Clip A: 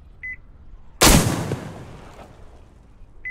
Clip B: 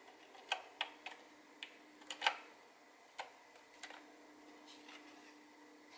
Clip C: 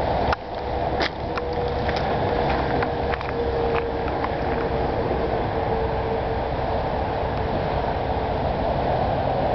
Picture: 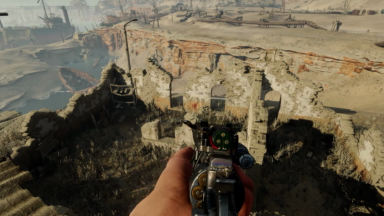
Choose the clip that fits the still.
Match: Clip A